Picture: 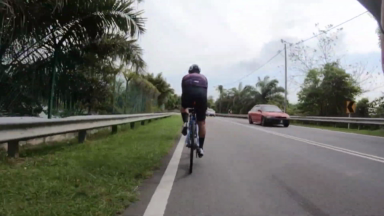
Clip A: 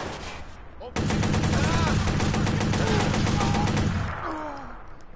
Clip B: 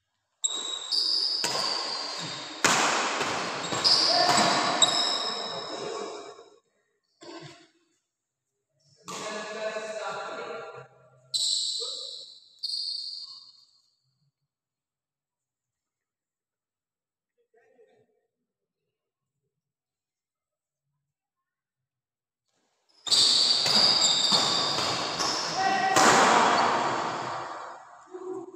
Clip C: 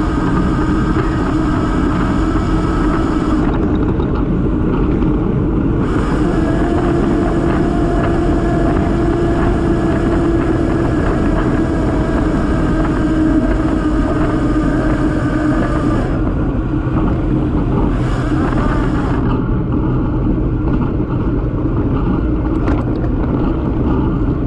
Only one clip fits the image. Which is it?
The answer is C